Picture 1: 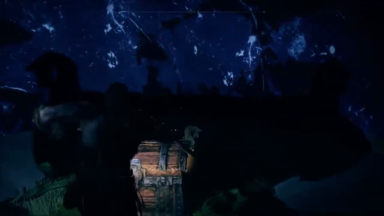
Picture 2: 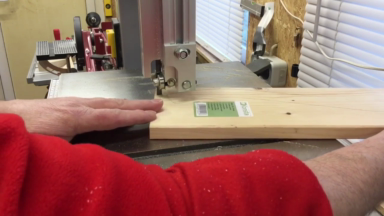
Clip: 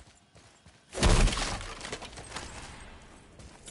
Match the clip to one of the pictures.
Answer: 1